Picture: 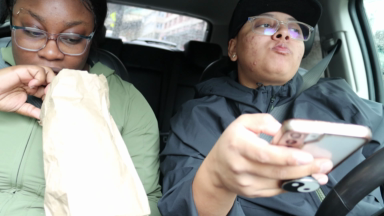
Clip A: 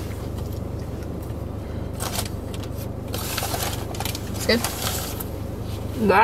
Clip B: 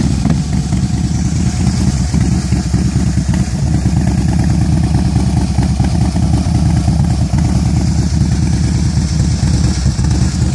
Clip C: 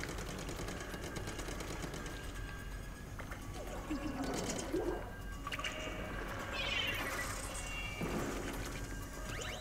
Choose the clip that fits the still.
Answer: A